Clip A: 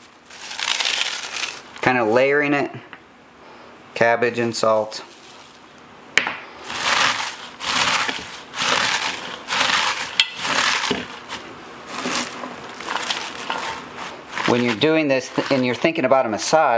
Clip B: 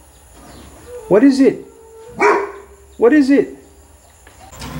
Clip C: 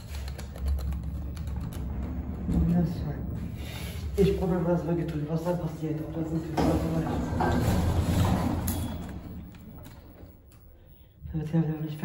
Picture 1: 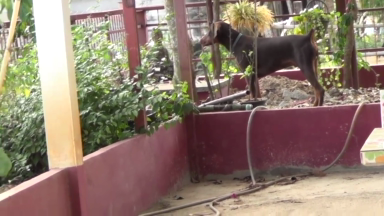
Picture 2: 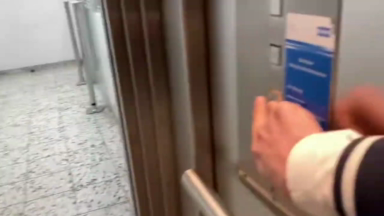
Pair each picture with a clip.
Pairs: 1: B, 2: C